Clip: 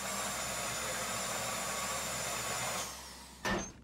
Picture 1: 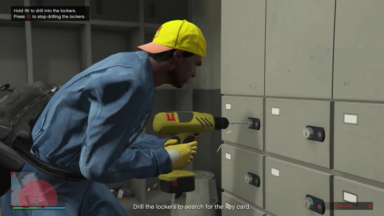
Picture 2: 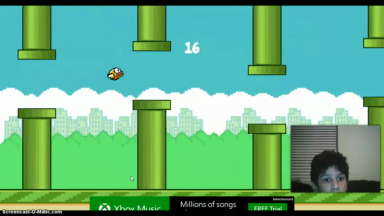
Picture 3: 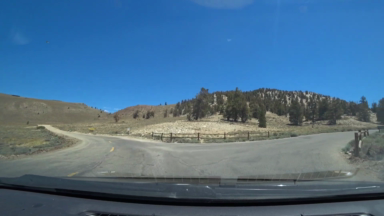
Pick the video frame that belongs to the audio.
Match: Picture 1